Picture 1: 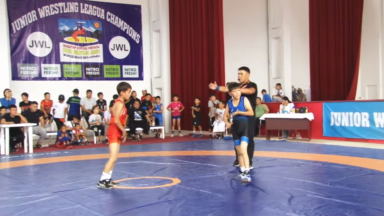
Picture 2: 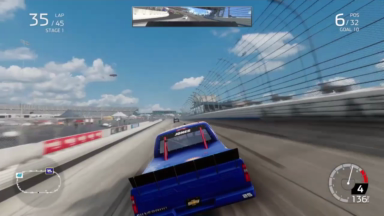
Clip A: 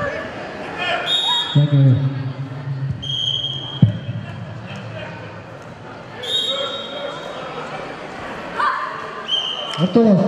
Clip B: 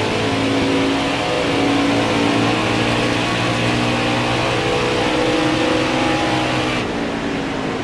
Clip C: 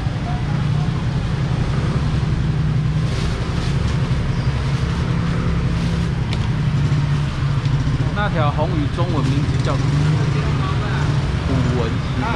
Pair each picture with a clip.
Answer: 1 A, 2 B